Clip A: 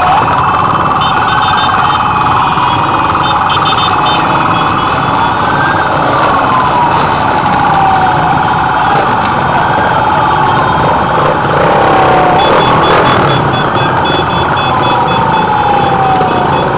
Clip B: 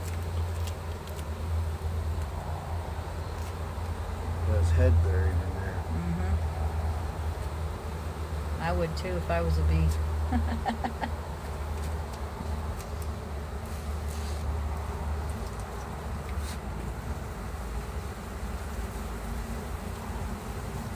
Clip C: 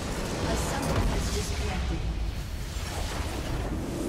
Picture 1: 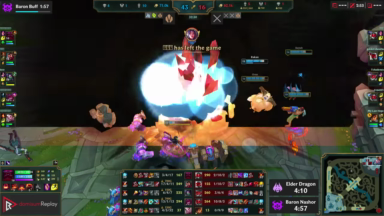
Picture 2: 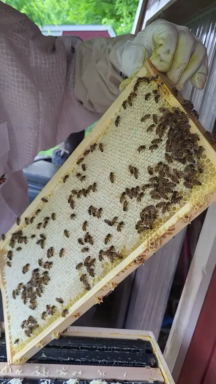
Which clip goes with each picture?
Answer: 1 C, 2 B